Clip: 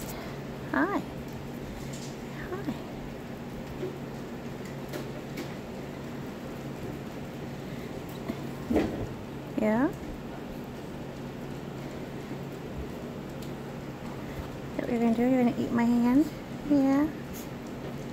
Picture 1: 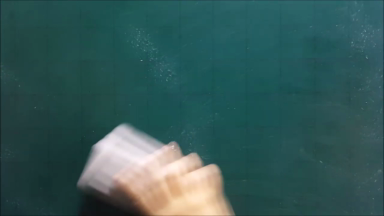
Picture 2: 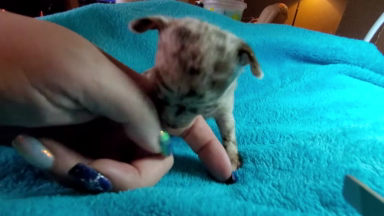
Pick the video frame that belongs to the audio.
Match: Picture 2